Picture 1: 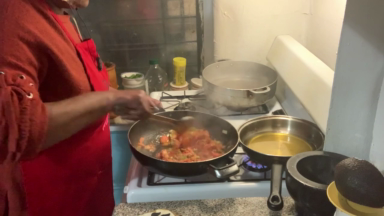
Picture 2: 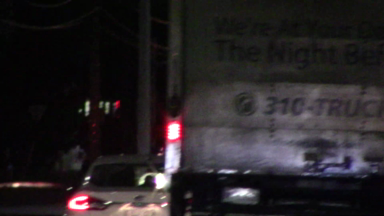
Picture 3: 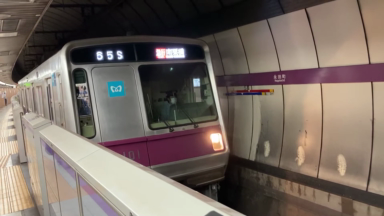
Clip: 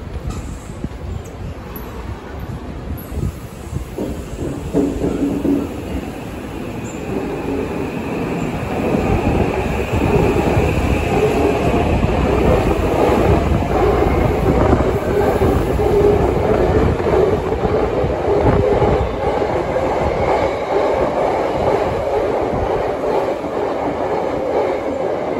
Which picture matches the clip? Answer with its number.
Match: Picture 3